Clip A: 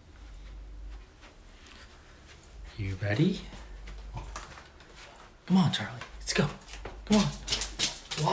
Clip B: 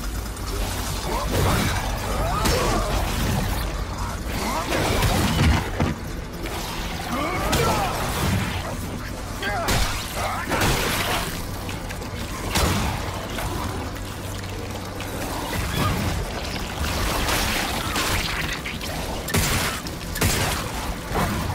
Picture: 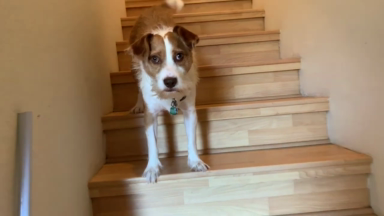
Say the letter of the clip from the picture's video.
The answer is A